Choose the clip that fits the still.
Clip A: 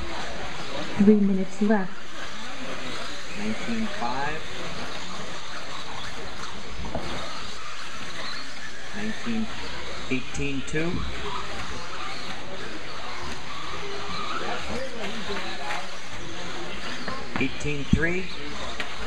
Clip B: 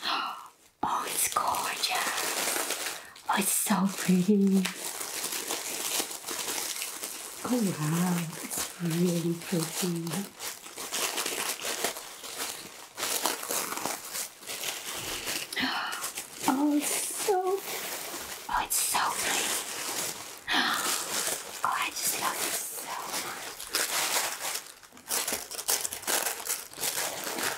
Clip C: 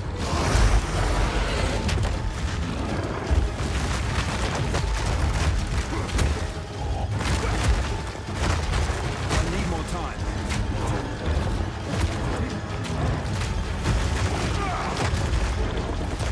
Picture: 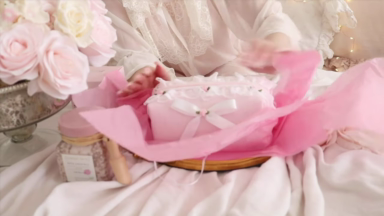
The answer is B